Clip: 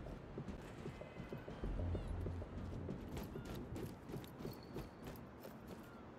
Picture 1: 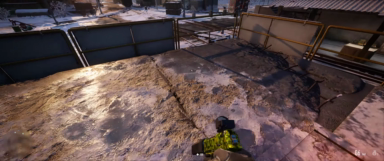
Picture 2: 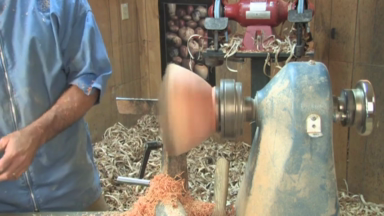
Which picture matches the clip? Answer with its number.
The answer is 1